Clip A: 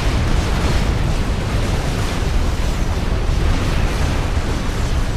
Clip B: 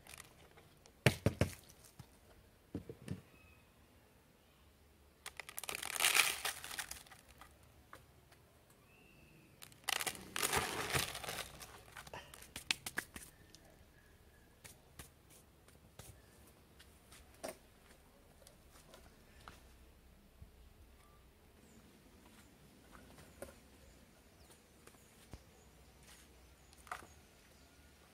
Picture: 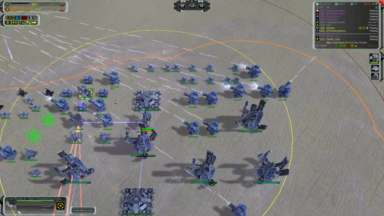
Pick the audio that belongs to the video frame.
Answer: A